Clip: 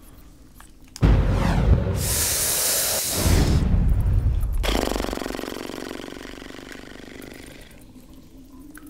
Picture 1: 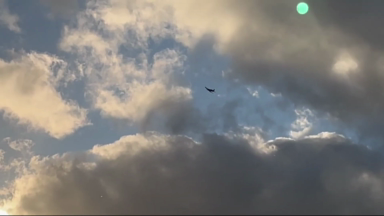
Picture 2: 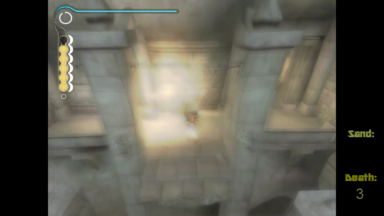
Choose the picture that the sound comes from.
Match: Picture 2